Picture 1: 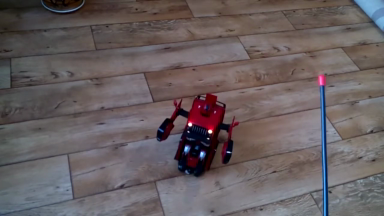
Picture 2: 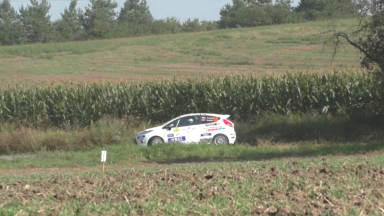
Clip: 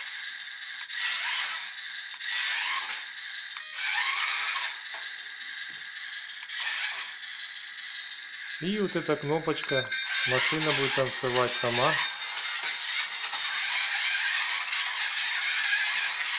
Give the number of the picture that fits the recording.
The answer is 1